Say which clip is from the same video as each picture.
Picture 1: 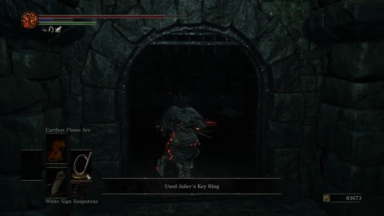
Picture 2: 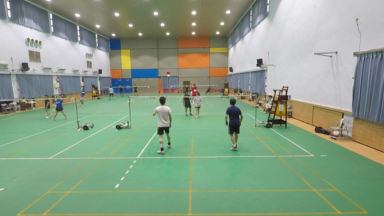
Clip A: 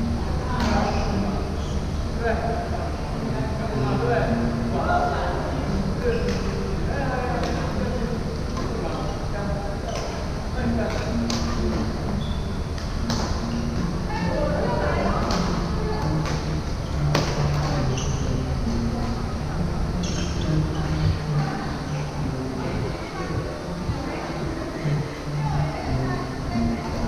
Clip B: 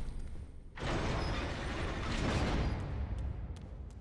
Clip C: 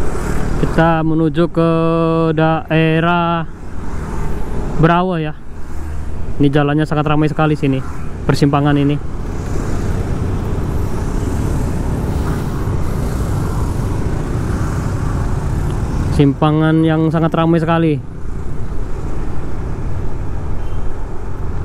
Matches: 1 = B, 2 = A